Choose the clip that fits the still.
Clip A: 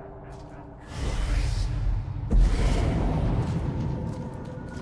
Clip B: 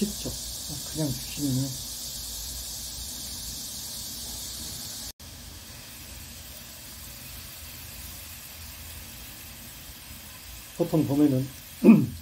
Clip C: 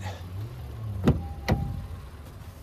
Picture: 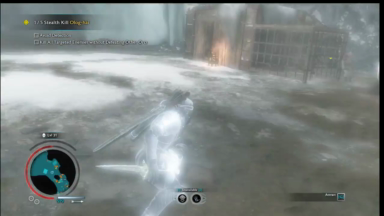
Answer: A